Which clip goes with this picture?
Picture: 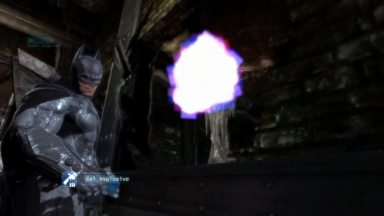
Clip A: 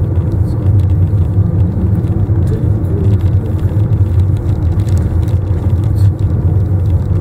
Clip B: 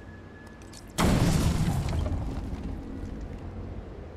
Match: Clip B